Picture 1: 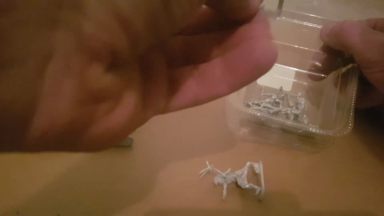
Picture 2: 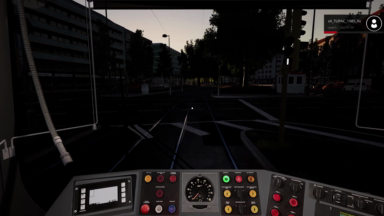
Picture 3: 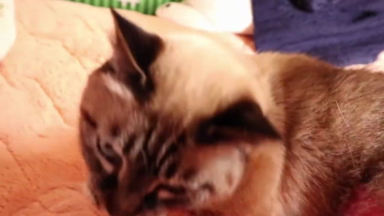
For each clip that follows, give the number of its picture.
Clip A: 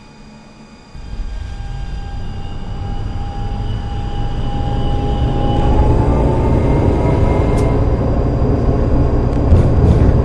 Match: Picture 2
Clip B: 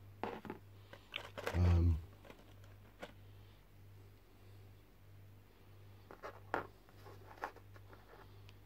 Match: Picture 1